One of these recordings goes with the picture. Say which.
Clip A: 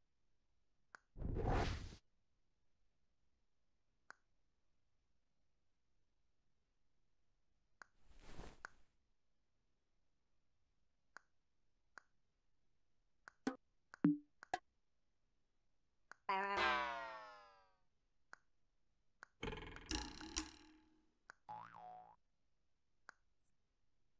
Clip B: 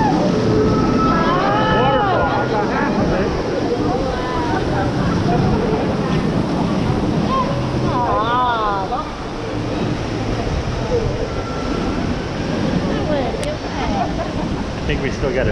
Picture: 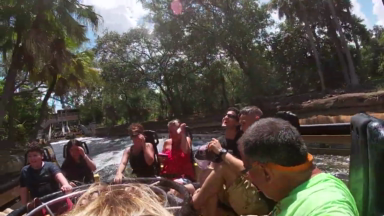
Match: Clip B